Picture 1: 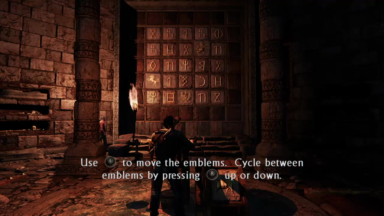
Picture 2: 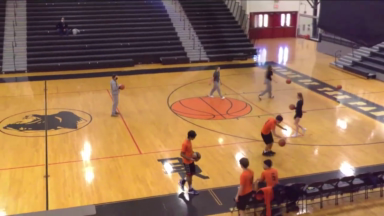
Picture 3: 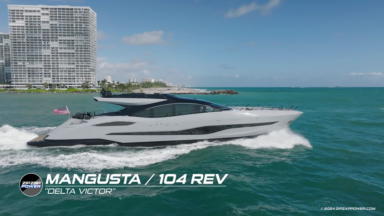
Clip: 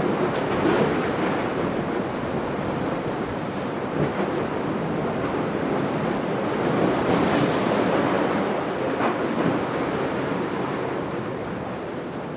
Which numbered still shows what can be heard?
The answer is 3